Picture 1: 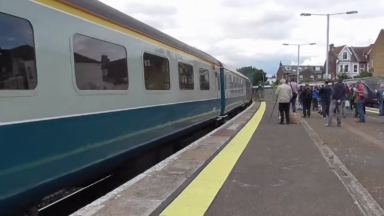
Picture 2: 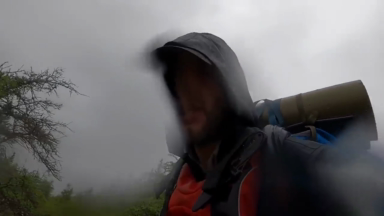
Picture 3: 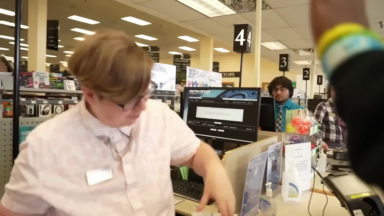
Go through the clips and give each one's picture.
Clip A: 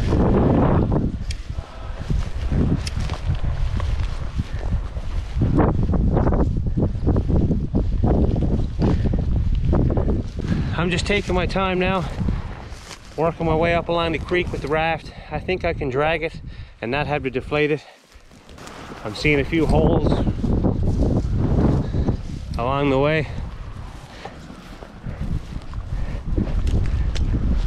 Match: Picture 2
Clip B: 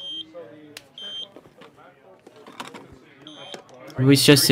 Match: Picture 3